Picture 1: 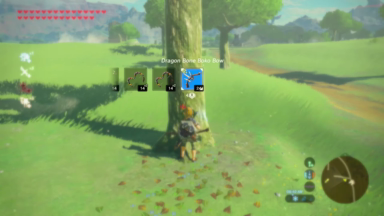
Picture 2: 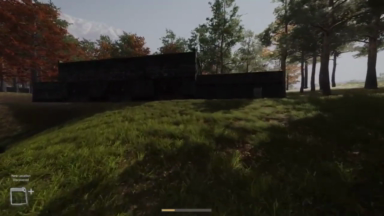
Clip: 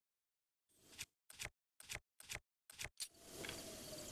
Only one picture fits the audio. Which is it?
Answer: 1